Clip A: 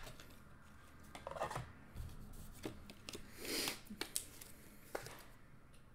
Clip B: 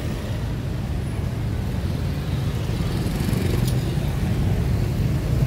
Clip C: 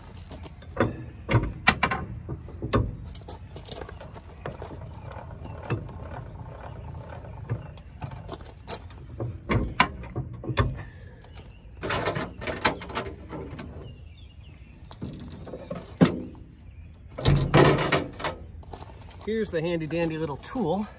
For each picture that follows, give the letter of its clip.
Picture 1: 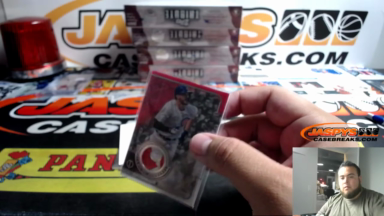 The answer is A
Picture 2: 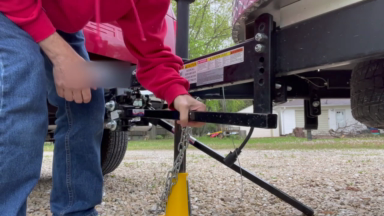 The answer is C